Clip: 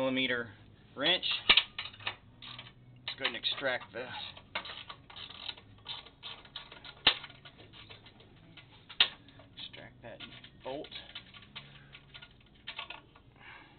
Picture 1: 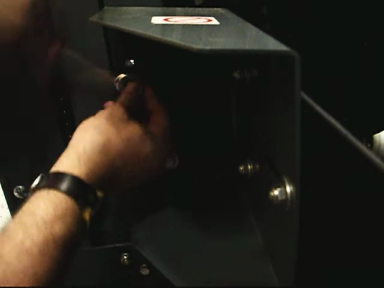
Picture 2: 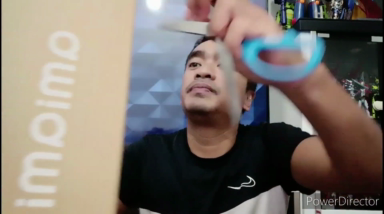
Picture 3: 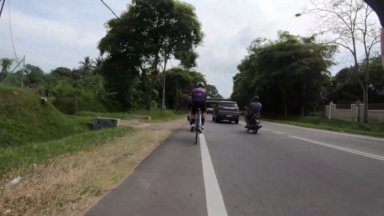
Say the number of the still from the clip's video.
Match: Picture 1